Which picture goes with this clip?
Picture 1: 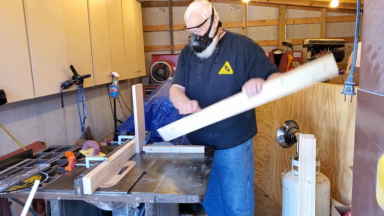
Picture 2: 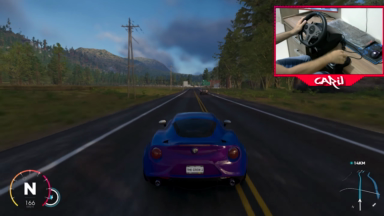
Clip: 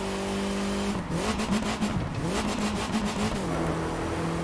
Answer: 2